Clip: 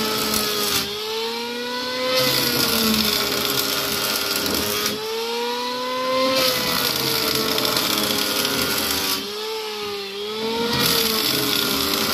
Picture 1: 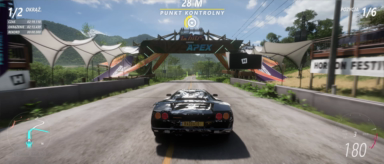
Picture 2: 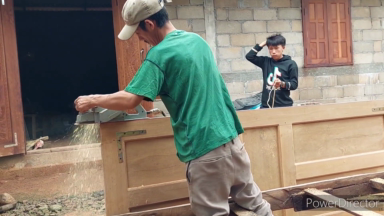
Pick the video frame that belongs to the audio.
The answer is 2